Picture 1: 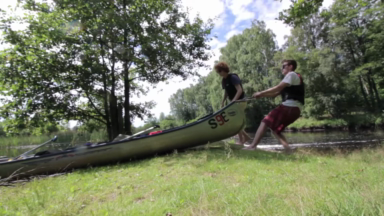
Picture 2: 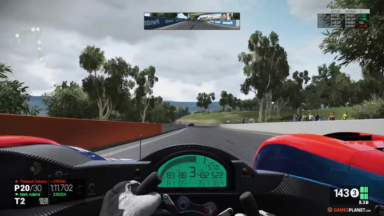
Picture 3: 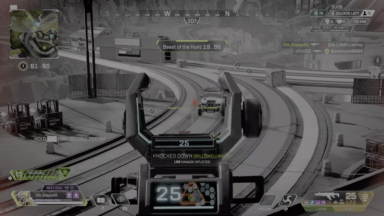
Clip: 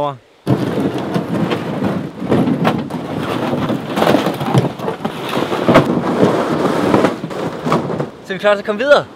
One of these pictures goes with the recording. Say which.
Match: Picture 1